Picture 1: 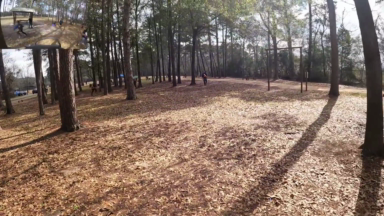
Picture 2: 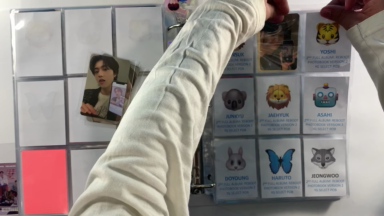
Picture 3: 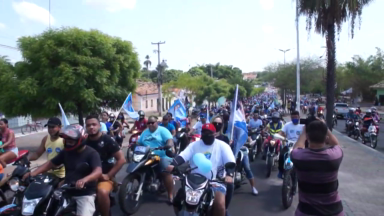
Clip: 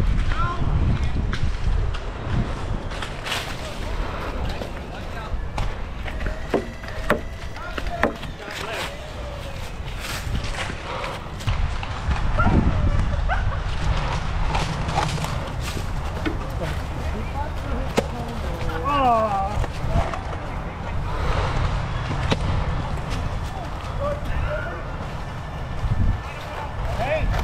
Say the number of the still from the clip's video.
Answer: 1